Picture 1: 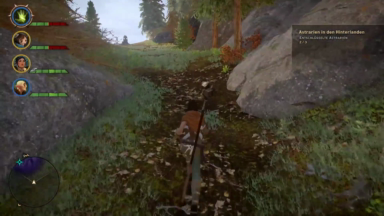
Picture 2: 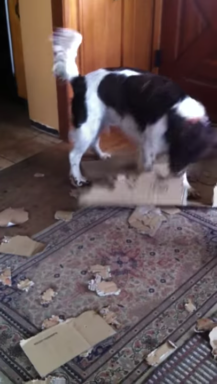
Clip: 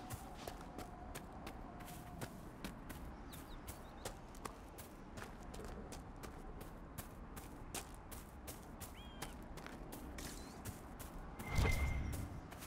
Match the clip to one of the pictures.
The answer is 1